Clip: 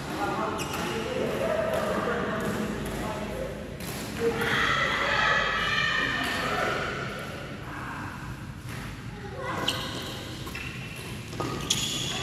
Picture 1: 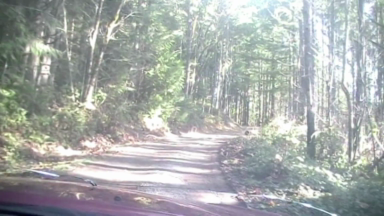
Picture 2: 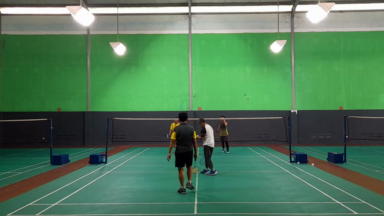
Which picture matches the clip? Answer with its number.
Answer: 2